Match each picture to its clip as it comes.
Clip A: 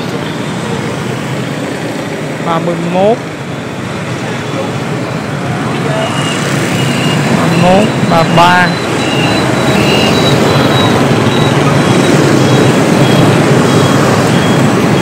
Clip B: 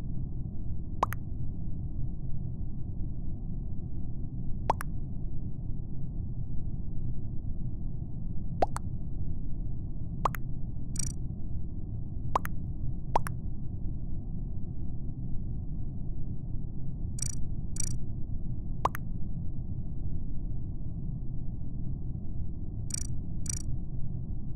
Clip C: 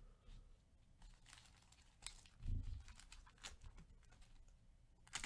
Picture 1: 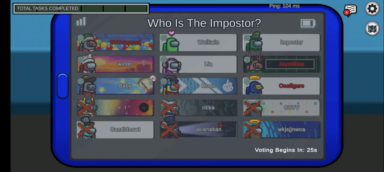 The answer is B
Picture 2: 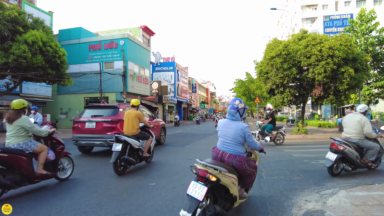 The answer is A